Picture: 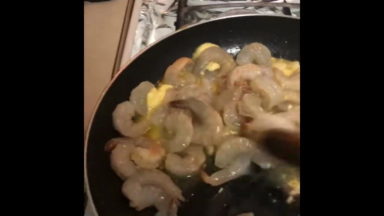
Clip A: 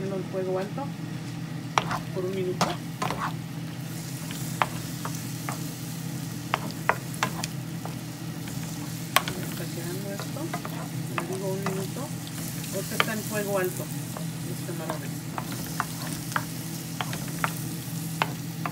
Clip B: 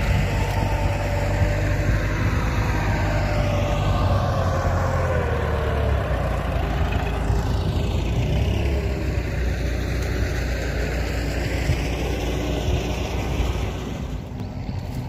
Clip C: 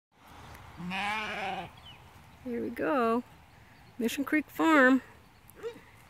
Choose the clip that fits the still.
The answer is A